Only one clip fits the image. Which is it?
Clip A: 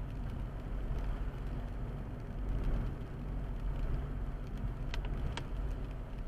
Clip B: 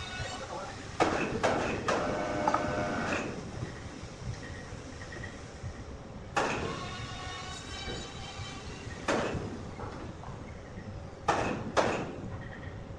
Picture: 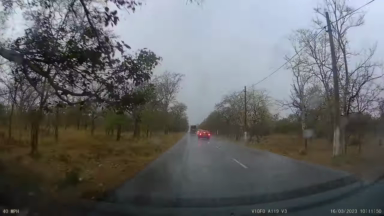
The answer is A